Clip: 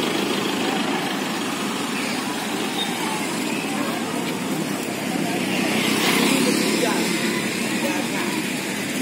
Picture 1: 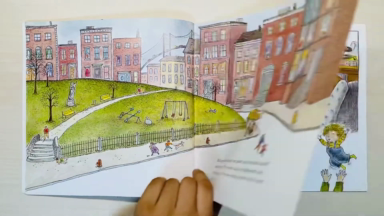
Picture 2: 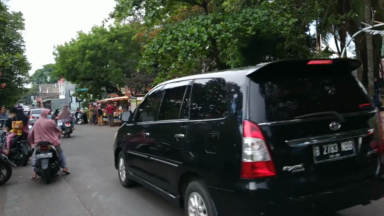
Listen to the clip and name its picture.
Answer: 2